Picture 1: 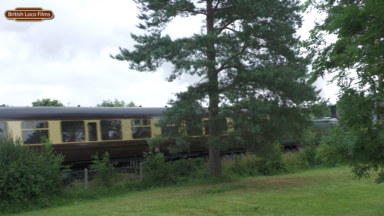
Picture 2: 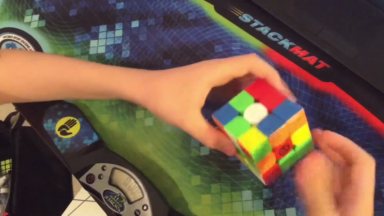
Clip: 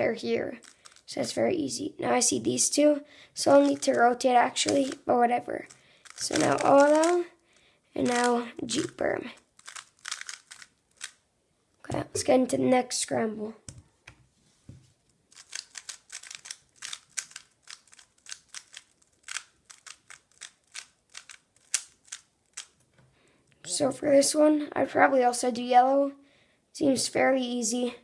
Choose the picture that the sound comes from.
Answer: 2